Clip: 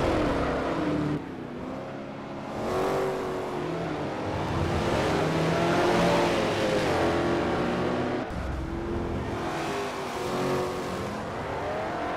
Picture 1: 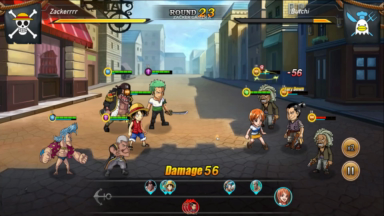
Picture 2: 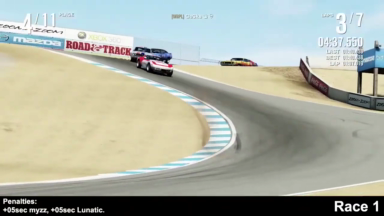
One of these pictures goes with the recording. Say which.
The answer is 2